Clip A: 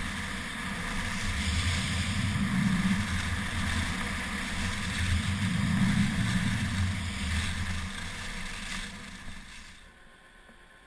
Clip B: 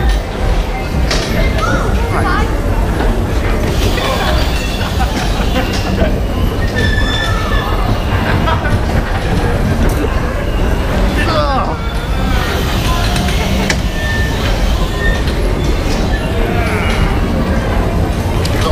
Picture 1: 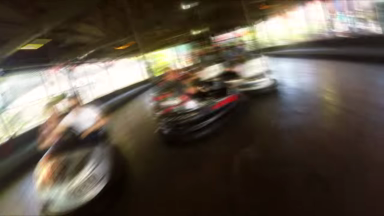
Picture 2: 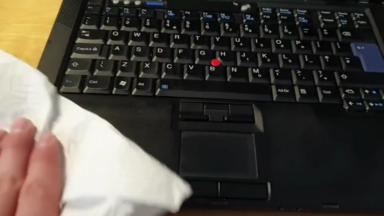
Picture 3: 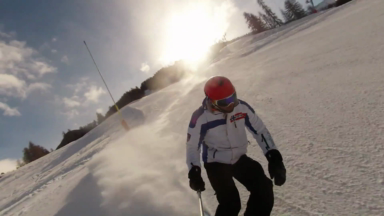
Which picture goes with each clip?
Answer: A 3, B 1